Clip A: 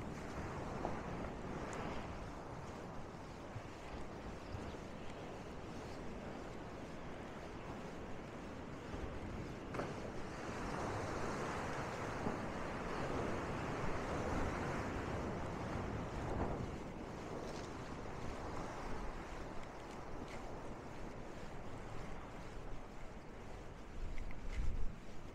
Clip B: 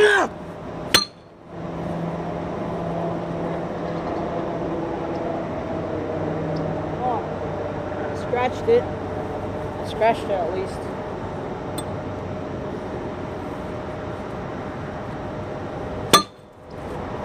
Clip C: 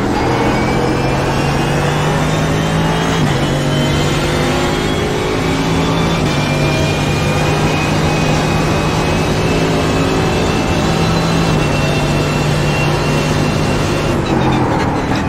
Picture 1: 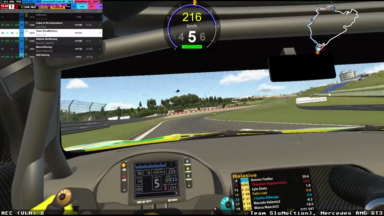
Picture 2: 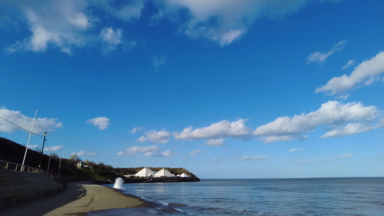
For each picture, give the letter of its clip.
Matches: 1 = C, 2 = A